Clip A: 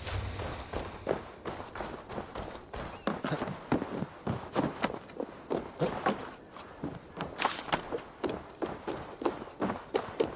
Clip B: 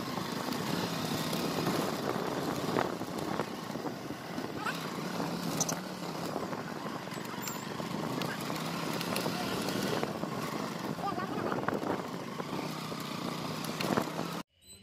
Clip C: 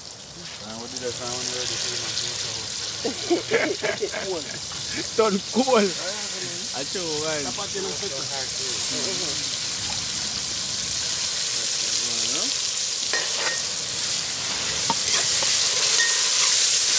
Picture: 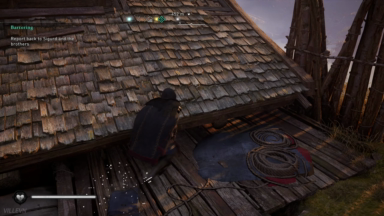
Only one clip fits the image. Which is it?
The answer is A